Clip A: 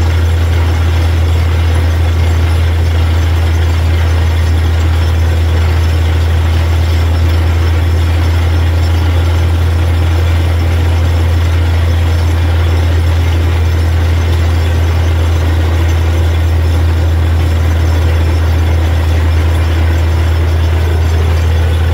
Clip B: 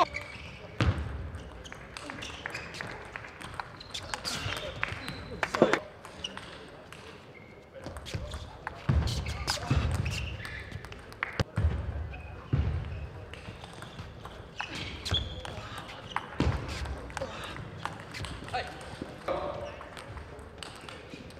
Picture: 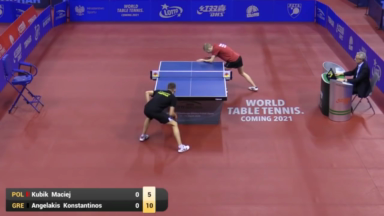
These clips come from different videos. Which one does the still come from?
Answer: B